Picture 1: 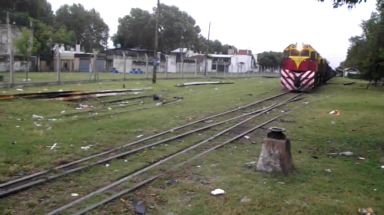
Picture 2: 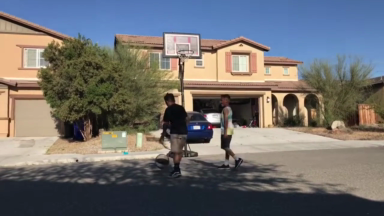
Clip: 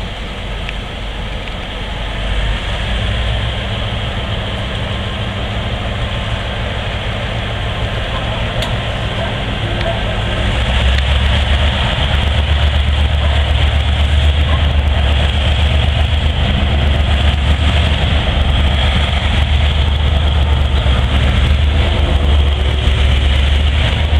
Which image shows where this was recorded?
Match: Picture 1